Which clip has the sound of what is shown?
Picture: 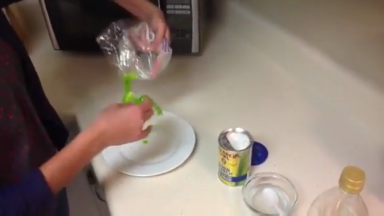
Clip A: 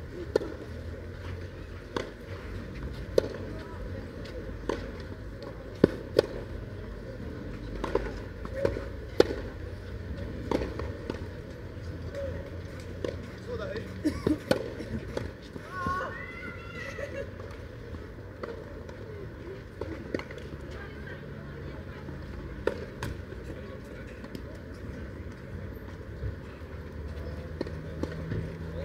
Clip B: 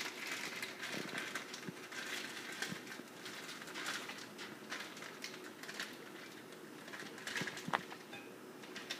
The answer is B